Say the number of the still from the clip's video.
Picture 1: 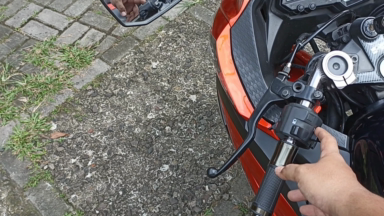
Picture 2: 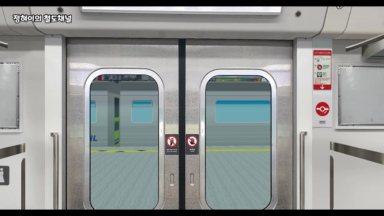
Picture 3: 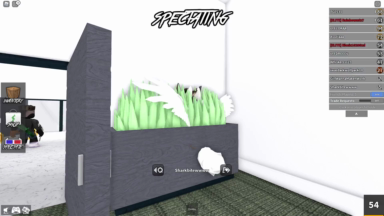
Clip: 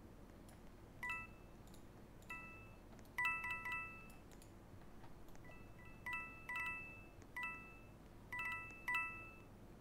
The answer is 3